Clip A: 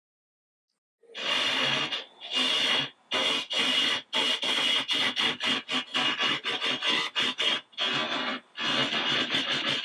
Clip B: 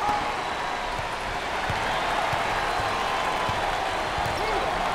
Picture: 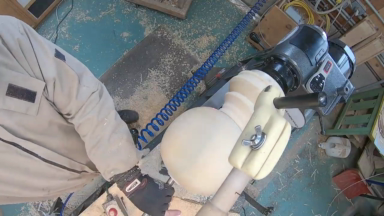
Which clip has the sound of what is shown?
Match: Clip A